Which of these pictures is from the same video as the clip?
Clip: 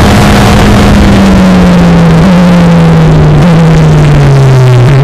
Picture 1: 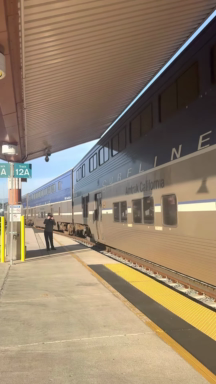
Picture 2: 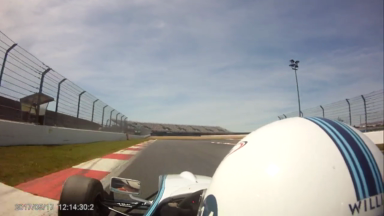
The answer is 2